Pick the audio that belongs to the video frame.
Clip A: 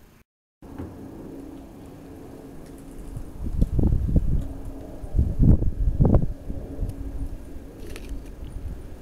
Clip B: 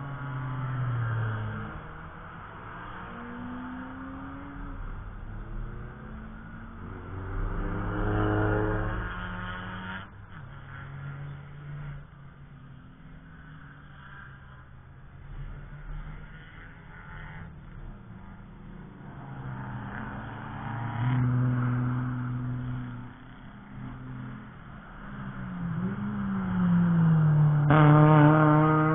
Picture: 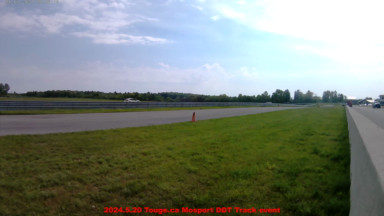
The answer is B